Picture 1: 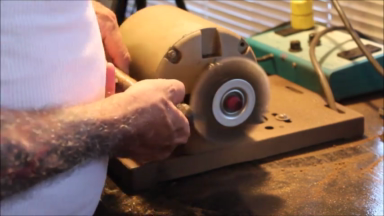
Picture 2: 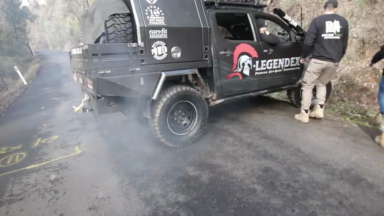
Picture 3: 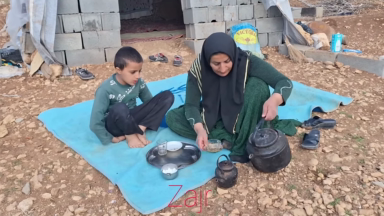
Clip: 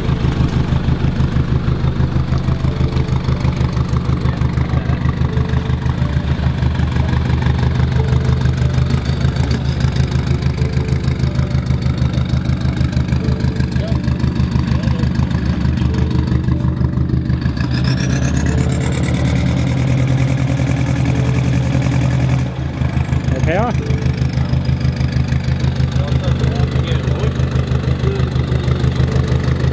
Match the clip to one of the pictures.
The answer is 2